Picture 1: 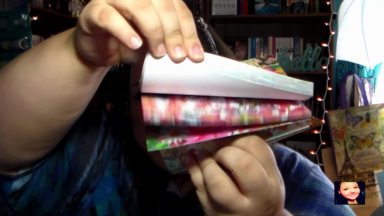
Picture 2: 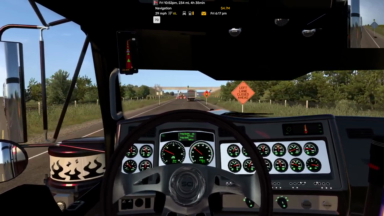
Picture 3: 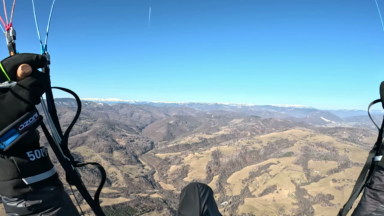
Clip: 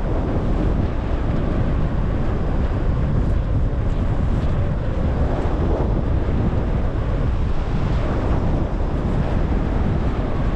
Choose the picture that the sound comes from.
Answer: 3